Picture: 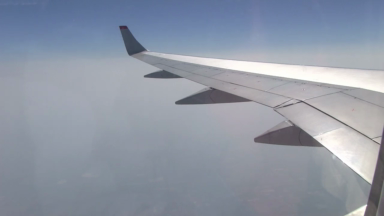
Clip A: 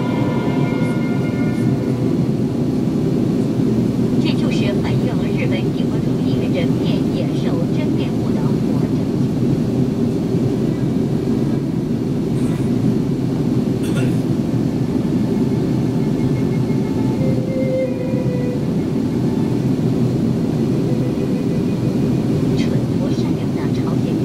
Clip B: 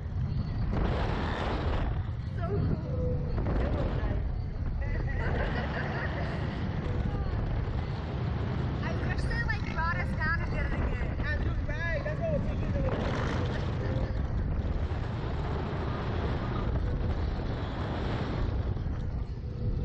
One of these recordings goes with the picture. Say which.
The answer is A